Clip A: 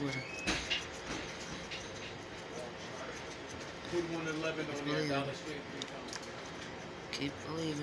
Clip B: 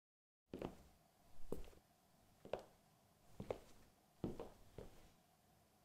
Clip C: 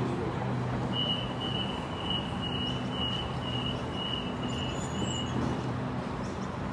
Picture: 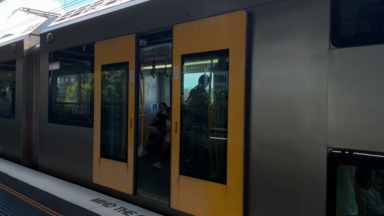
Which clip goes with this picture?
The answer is C